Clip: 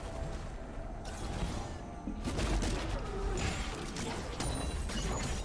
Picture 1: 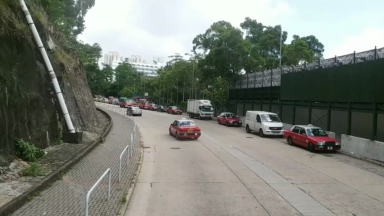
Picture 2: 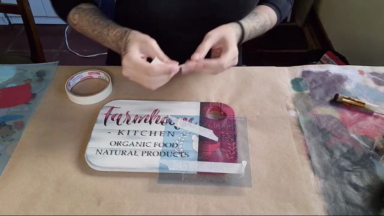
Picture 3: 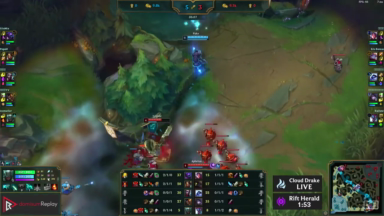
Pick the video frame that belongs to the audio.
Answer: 3